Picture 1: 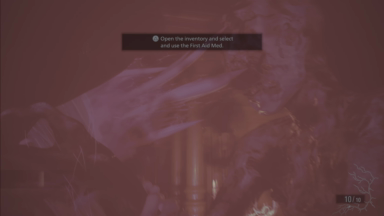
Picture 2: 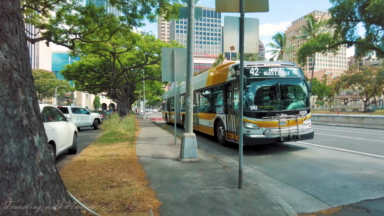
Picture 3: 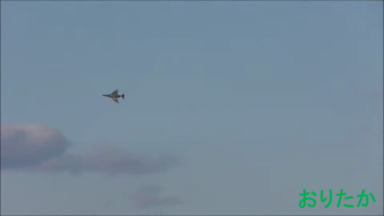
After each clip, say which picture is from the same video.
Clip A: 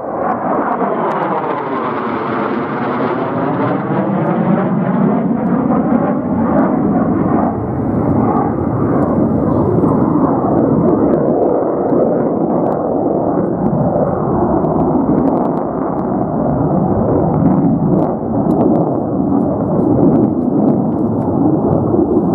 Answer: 3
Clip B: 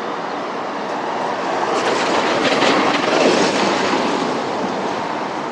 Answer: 2